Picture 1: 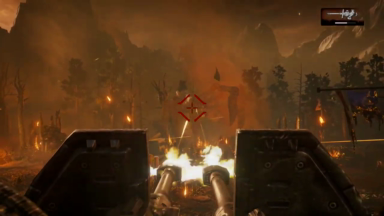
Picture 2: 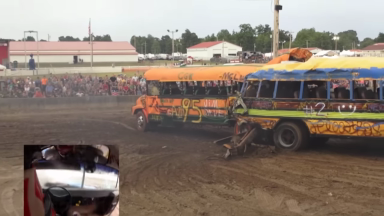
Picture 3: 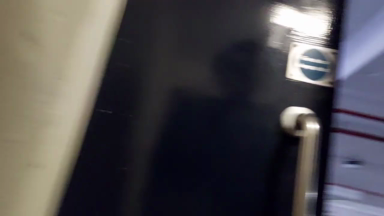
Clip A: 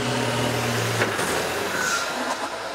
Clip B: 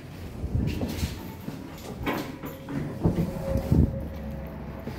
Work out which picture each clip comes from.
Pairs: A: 2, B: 3